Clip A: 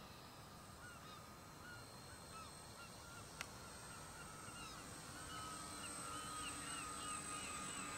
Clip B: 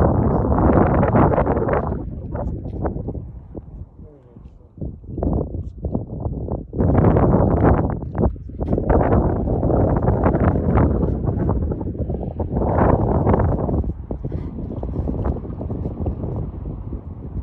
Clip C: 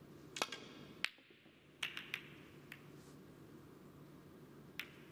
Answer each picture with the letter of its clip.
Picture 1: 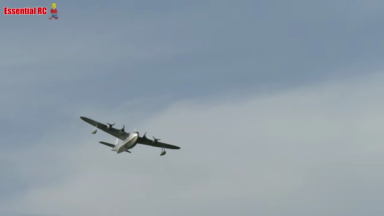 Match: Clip A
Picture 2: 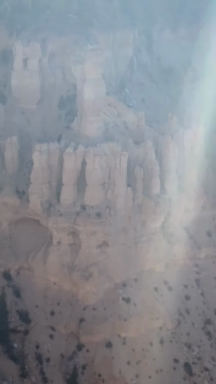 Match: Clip B